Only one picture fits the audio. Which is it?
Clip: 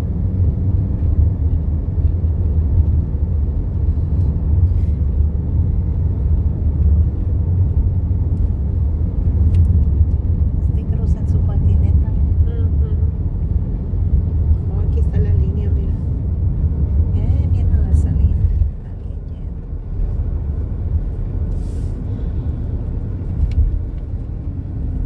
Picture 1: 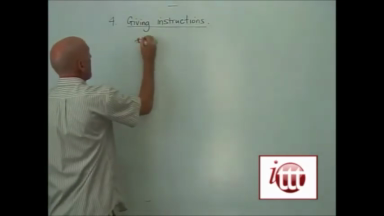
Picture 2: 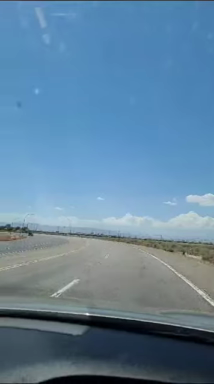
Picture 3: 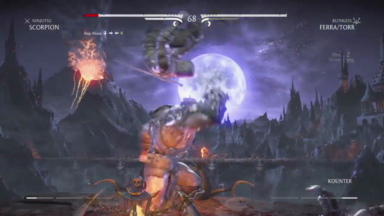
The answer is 2